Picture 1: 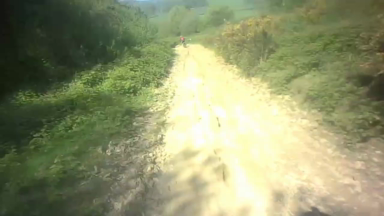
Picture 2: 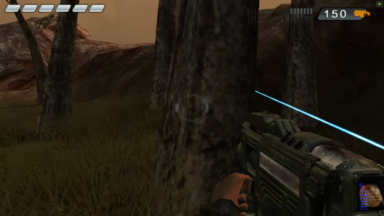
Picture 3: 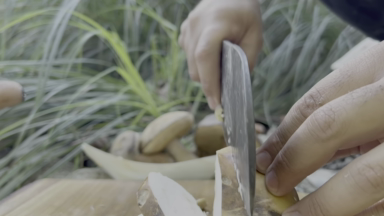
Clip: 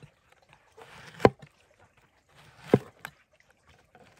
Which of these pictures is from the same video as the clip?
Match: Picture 3